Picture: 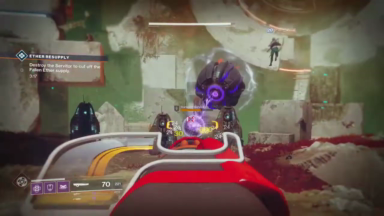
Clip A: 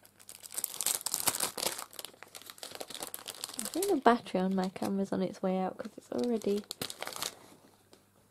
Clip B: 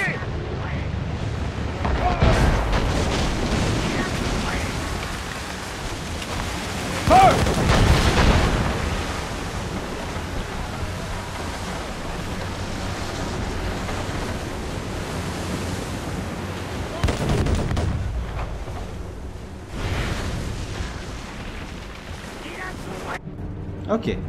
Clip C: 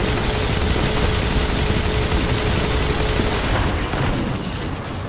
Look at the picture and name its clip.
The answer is C